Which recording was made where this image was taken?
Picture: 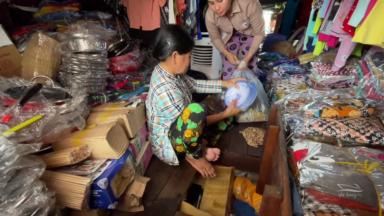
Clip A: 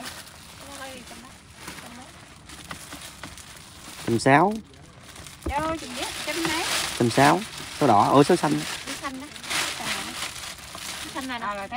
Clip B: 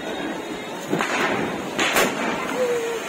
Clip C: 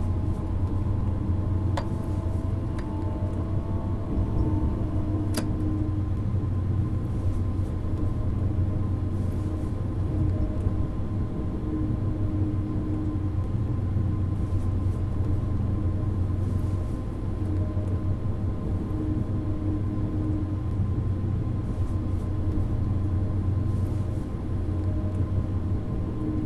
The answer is A